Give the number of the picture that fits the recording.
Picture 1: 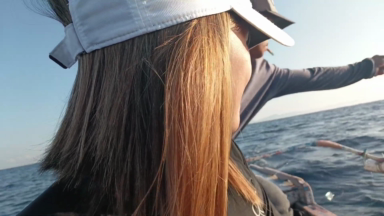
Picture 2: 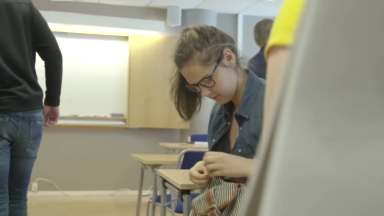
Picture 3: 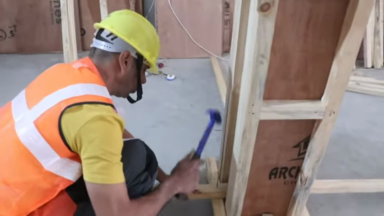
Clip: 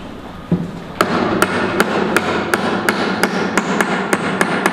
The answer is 3